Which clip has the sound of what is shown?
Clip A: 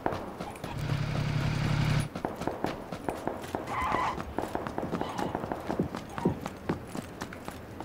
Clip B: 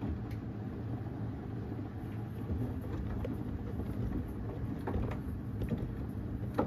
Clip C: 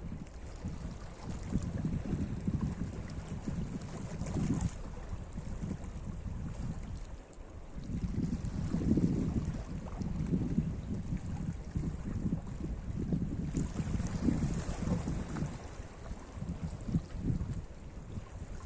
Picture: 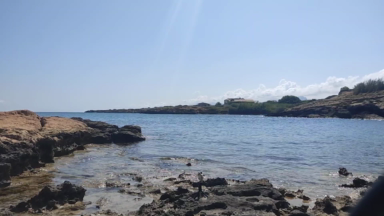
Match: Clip C